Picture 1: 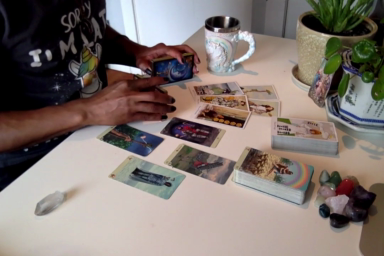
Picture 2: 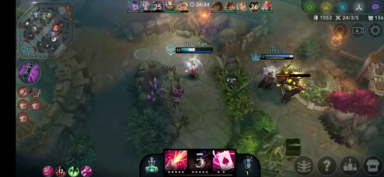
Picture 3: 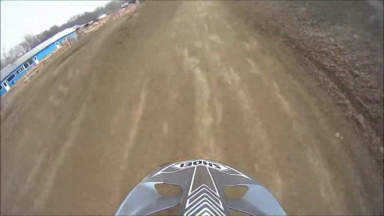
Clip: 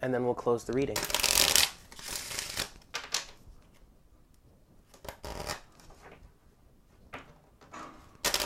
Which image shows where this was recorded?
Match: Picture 1